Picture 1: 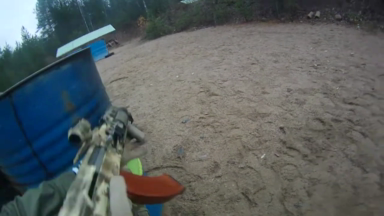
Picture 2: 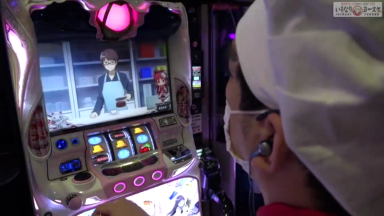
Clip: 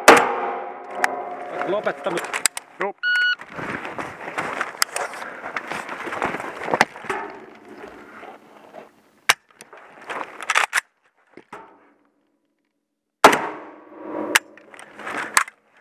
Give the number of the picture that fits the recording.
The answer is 1